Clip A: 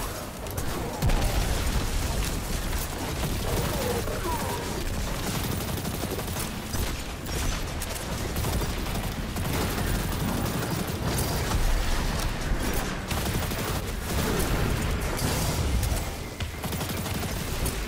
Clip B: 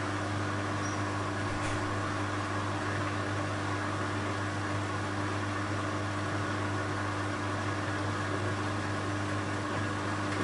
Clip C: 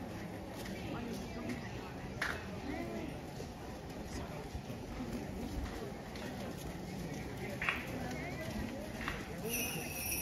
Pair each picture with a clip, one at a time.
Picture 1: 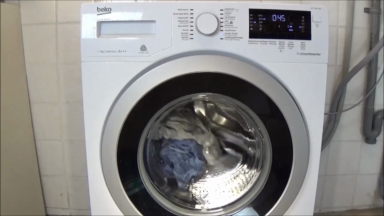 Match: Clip B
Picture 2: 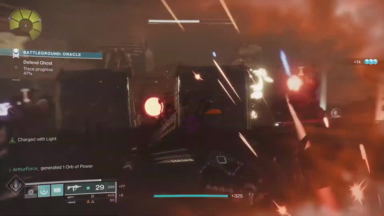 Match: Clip A